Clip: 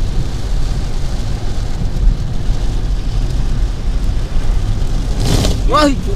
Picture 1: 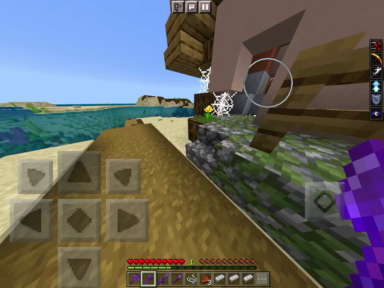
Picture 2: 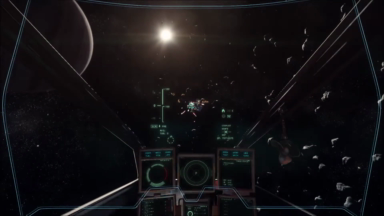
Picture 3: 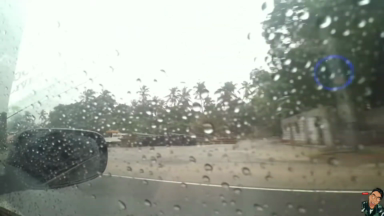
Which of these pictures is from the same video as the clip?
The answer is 3